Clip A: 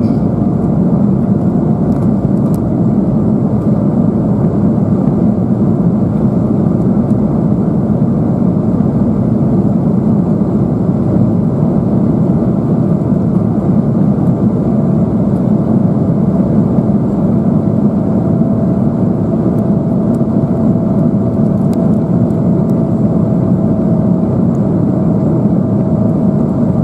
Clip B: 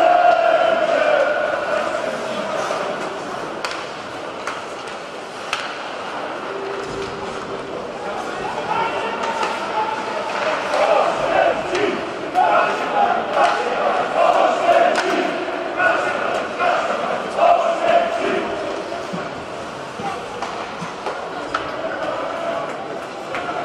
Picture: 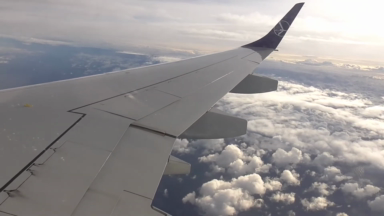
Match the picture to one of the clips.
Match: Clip A